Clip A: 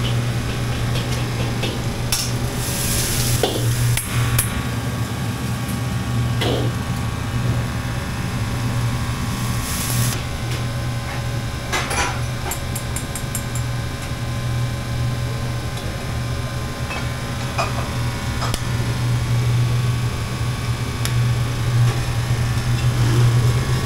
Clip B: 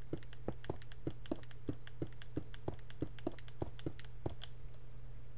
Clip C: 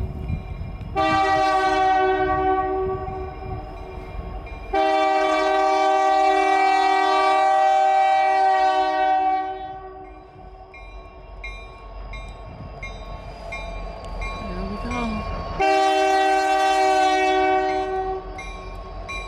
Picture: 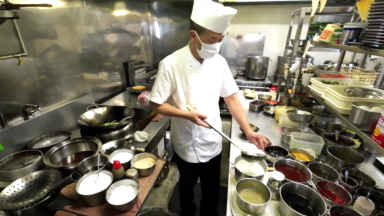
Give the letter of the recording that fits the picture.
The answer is A